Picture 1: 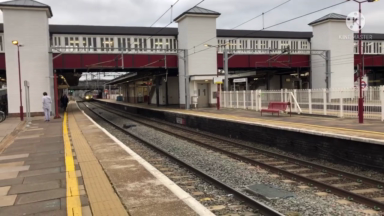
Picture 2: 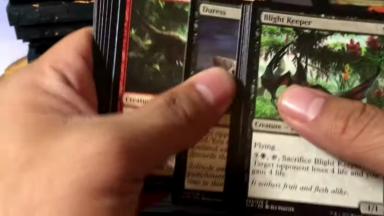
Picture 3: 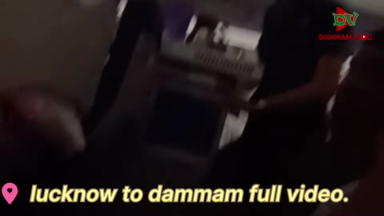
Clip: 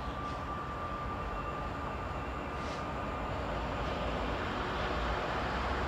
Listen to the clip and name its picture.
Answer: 1